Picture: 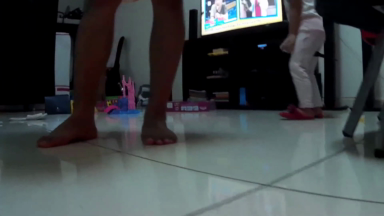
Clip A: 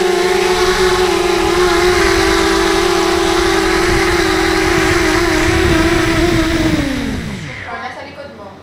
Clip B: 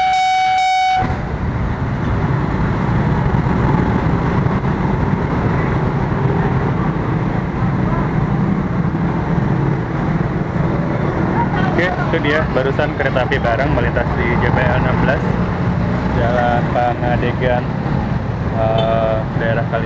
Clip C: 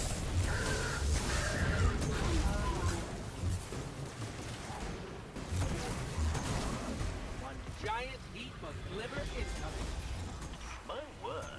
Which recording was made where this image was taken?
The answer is A